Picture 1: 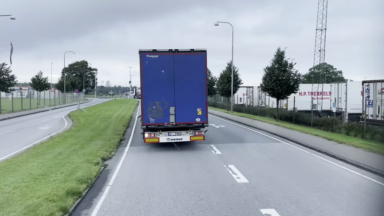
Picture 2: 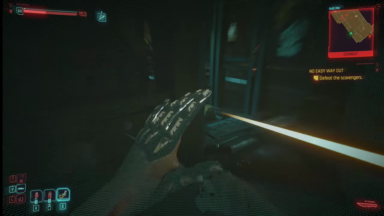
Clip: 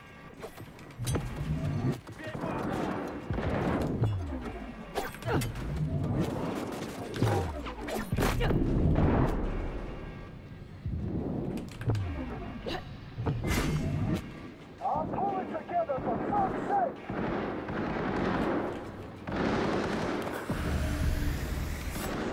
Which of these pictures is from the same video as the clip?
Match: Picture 2